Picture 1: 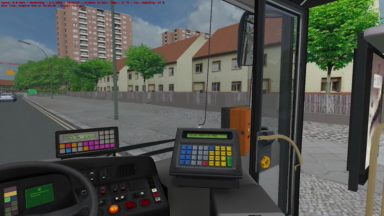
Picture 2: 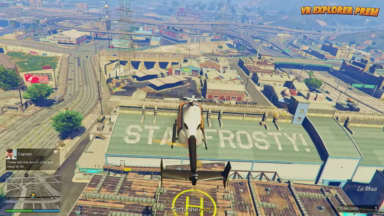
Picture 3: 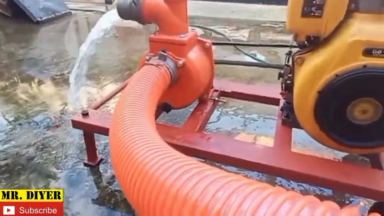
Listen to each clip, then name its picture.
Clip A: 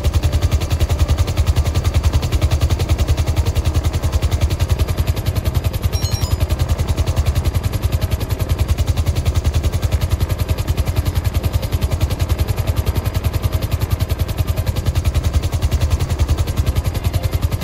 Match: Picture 2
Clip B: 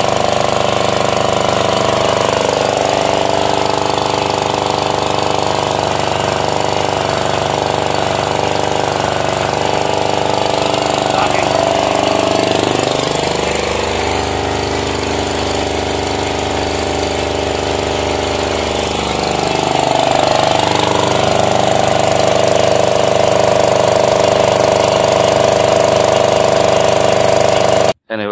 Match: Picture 3